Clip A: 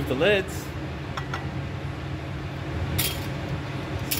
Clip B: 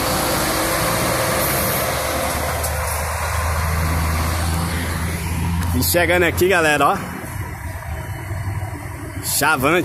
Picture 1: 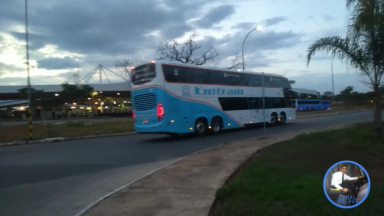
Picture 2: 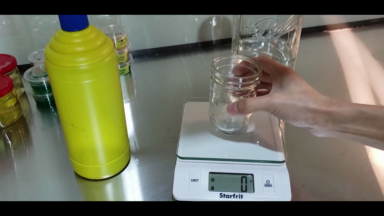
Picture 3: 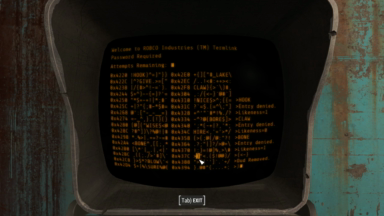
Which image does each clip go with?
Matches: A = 2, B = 1